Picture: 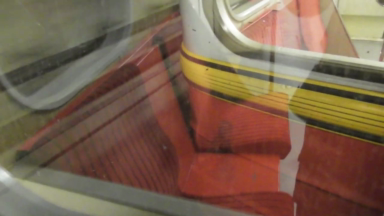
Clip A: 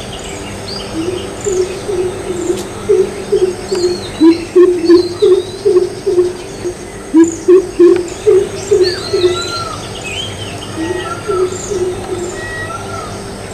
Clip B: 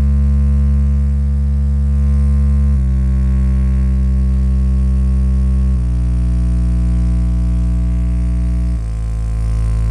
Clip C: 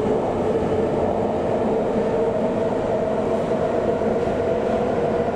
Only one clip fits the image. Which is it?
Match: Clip C